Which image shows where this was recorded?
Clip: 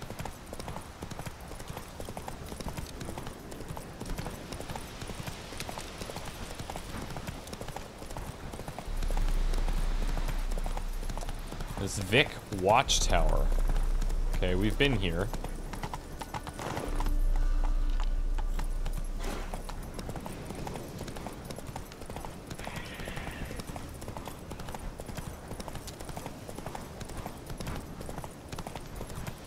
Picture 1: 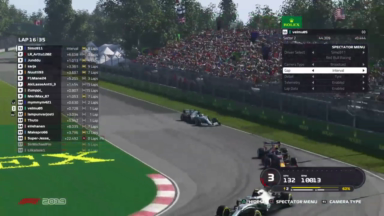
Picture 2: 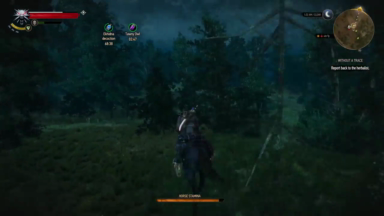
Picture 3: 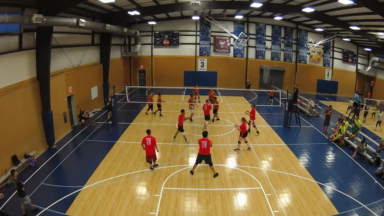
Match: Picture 2